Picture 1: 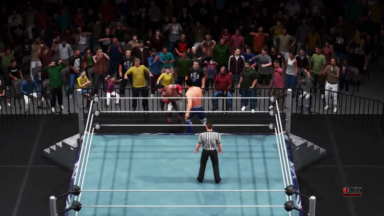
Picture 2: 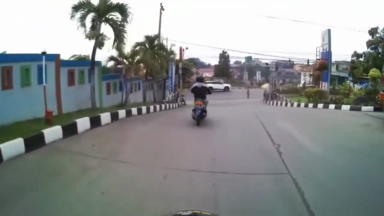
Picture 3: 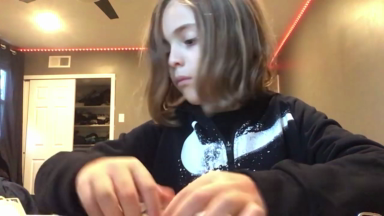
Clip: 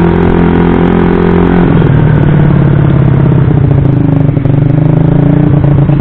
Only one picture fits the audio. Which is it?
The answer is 2